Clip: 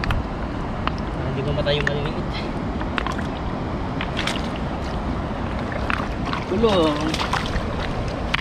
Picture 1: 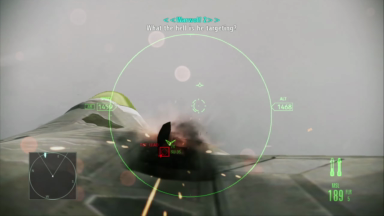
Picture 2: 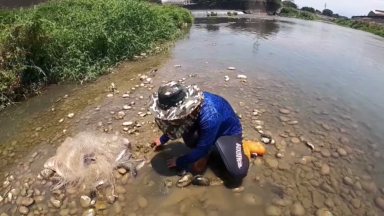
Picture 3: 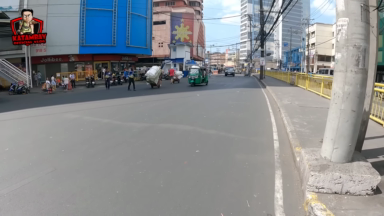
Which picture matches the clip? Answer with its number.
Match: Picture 2